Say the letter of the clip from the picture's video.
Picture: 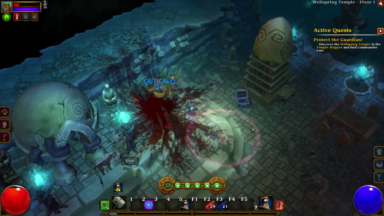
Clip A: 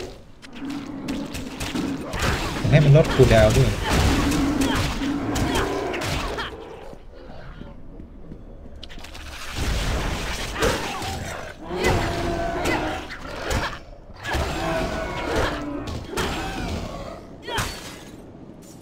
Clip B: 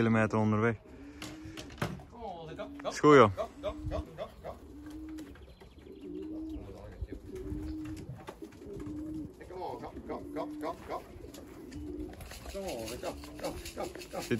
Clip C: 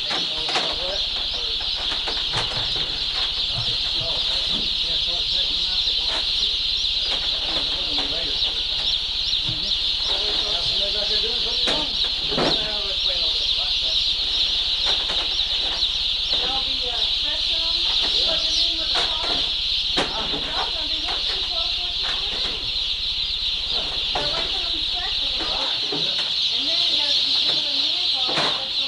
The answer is A